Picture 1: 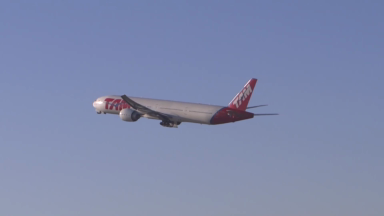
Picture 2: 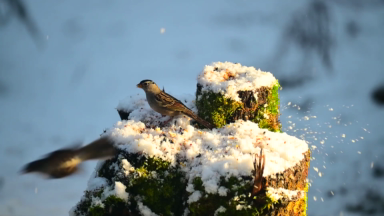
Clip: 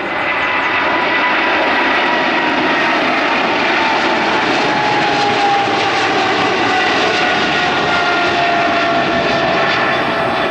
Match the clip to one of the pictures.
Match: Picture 1